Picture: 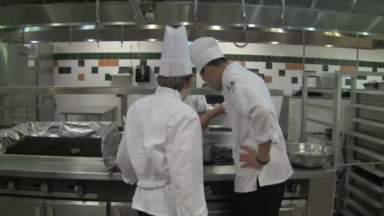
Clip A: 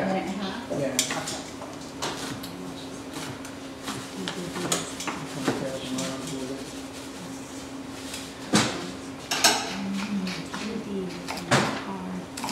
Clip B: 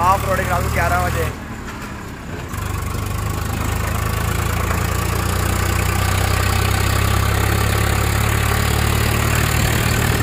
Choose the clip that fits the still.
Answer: A